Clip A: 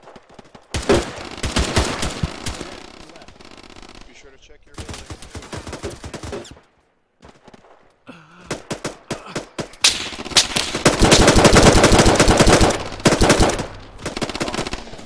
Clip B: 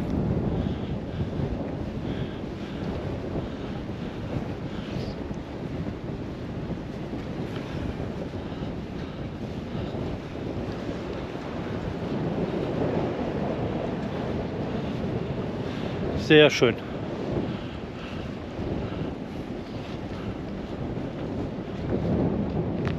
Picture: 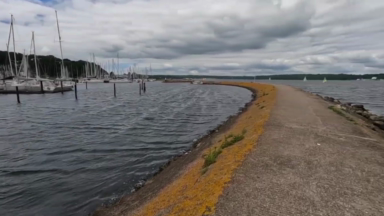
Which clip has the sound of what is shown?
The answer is B